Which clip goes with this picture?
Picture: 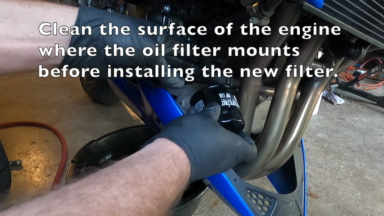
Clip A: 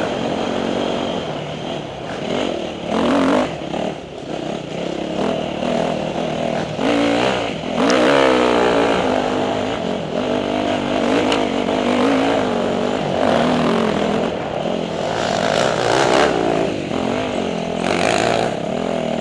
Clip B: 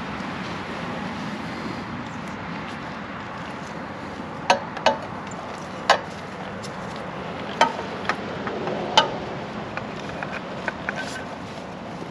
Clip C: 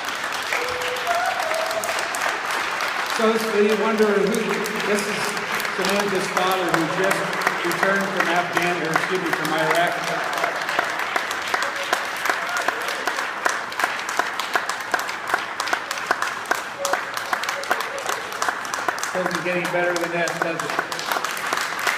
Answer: B